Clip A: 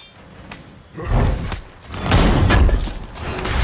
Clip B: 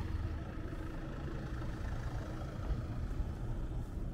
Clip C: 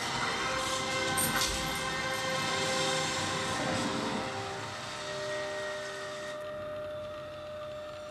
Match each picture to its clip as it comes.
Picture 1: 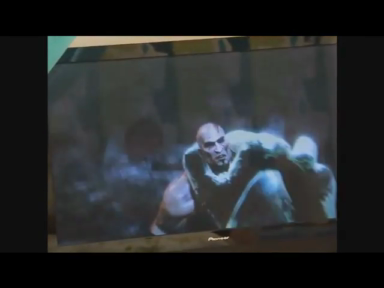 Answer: C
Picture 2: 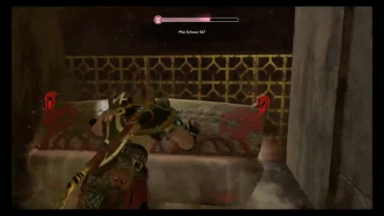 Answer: A